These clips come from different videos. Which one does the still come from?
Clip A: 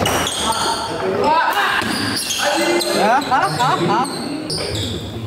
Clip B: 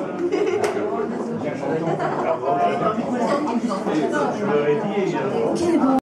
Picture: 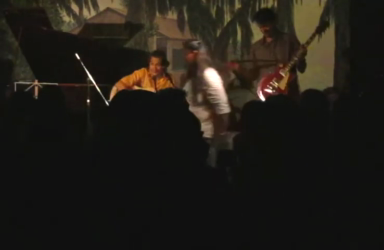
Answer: B